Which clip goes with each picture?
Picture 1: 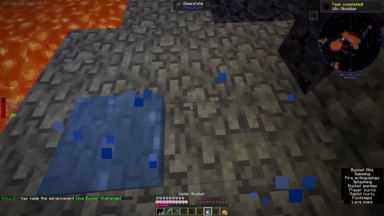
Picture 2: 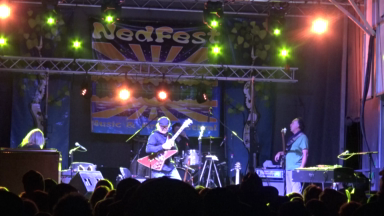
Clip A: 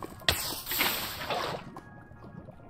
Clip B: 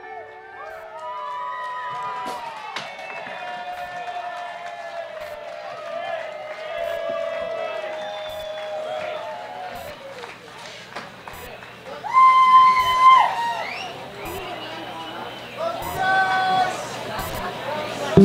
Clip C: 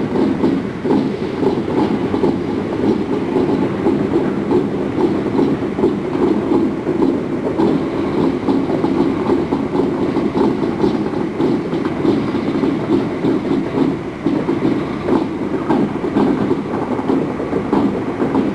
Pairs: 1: A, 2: B